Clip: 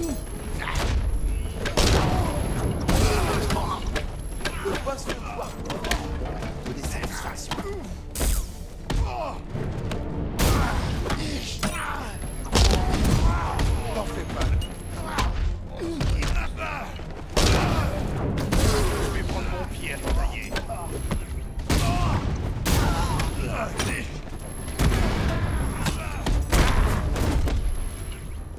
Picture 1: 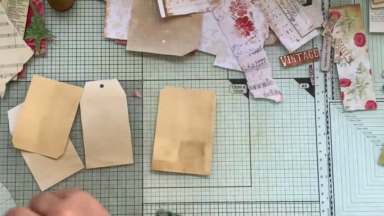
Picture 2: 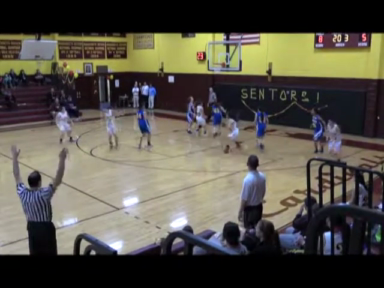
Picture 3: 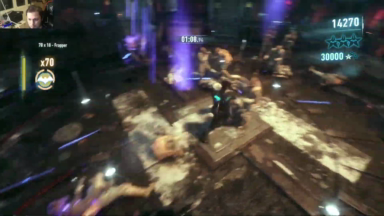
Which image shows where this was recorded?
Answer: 3